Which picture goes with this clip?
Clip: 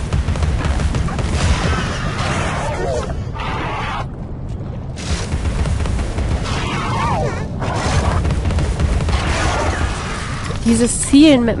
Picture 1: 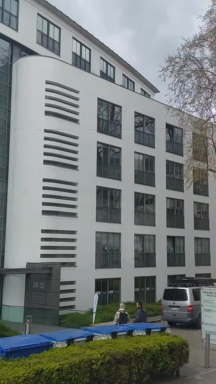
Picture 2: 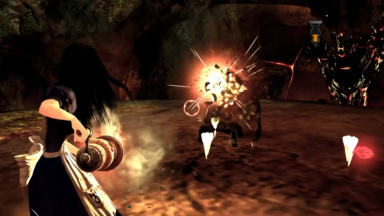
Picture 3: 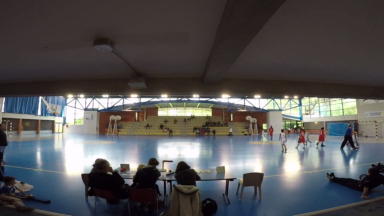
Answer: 2